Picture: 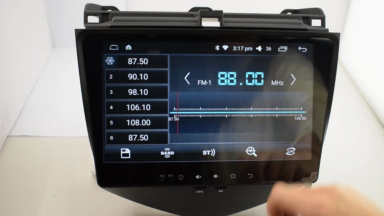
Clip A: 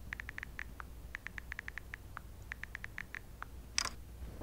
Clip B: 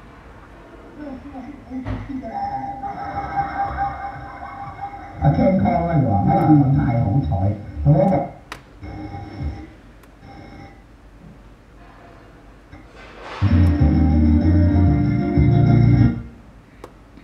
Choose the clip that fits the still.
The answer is B